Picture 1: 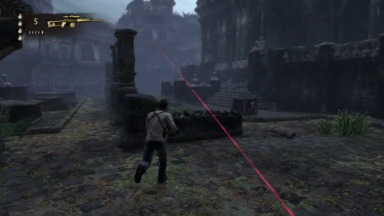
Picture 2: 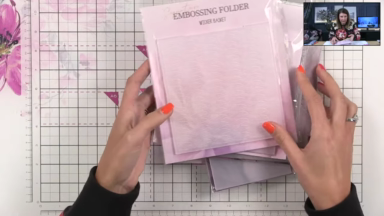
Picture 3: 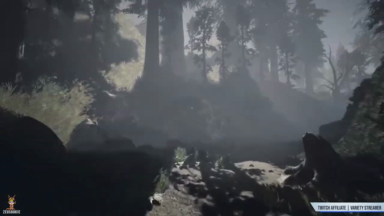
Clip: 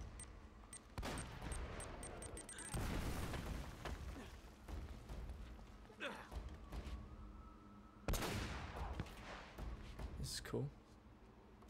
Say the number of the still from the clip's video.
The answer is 1